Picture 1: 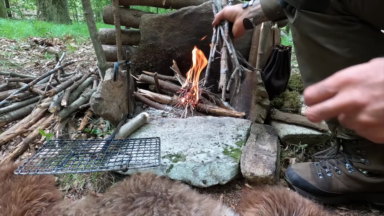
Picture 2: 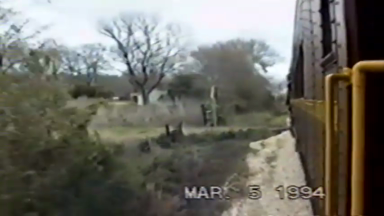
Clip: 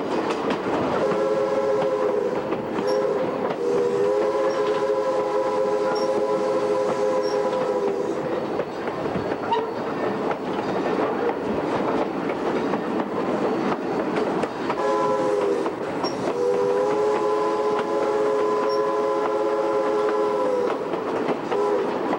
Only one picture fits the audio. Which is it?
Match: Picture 2